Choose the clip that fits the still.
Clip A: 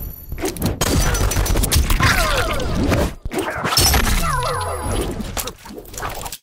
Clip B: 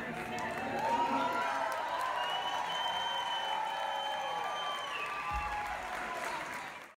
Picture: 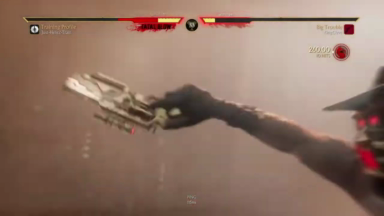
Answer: A